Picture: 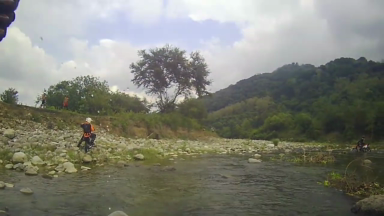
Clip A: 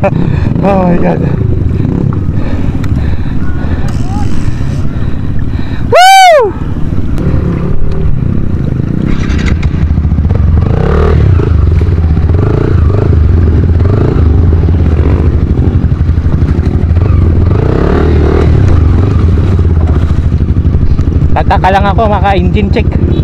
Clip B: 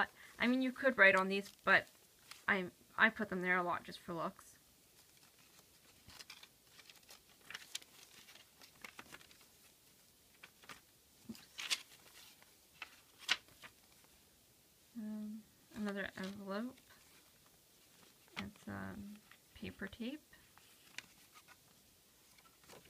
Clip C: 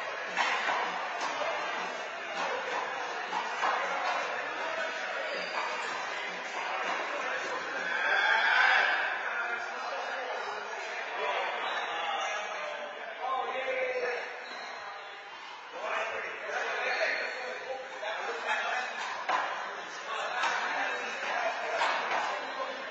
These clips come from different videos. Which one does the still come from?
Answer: A